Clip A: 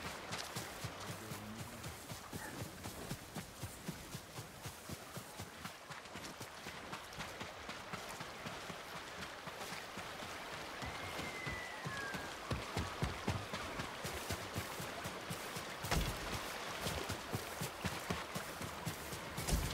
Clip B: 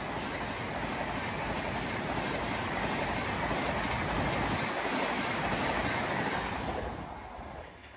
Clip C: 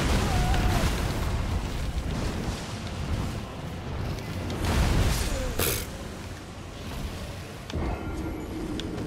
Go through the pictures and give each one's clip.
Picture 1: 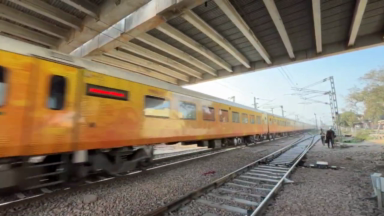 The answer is B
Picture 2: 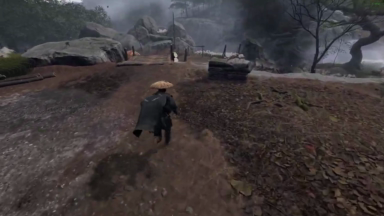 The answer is A